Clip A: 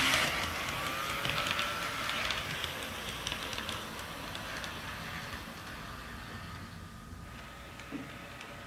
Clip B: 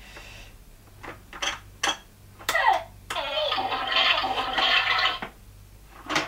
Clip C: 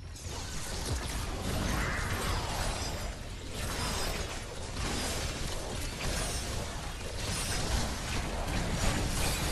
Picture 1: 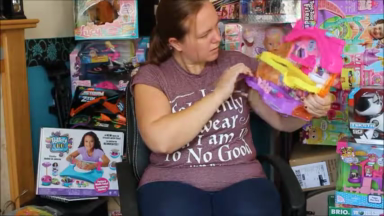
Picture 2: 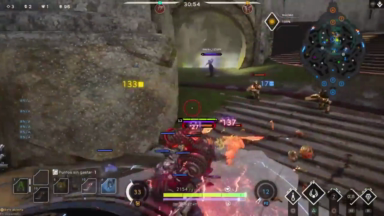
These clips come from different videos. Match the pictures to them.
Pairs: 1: B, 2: C